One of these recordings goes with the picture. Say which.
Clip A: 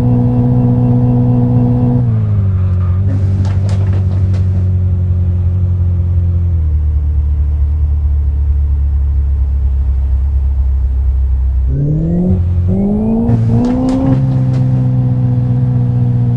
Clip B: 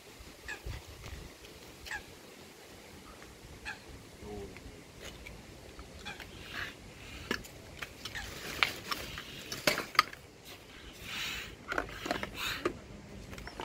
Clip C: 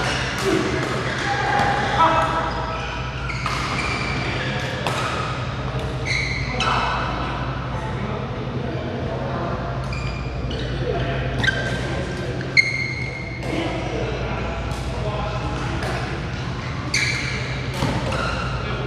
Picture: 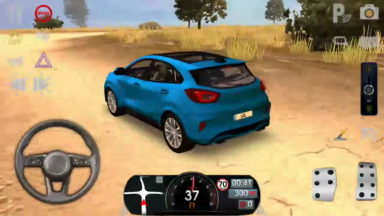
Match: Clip A